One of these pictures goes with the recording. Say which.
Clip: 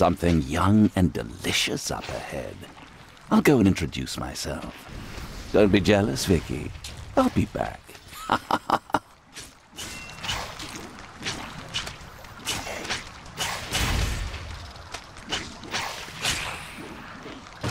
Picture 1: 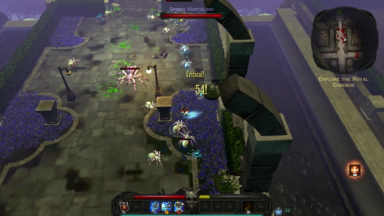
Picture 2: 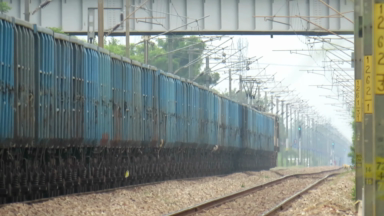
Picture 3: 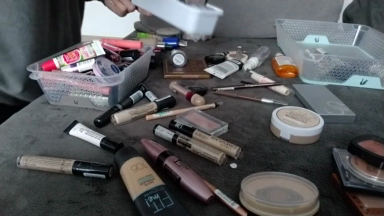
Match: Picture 1